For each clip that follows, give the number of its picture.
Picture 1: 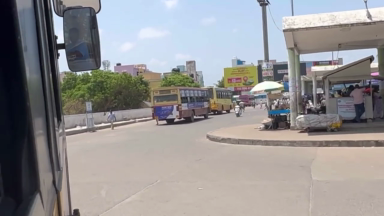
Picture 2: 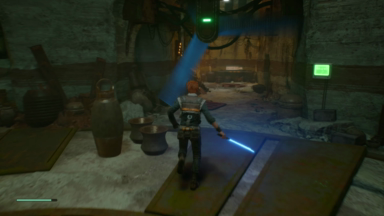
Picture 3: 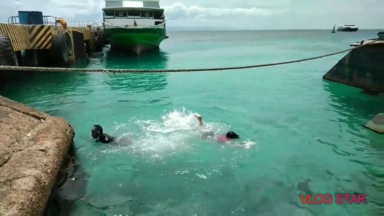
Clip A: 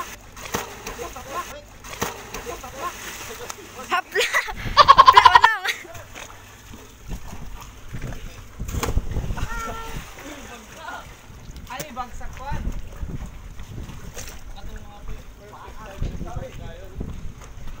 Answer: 3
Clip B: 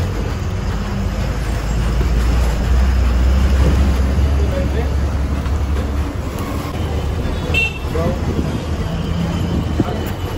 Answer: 1